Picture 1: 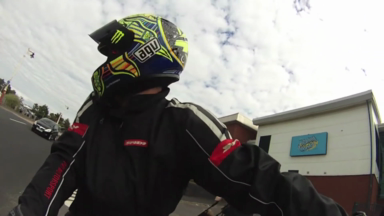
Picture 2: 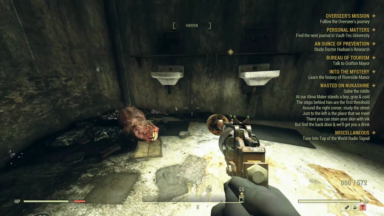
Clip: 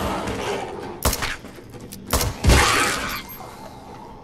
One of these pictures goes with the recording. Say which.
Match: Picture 2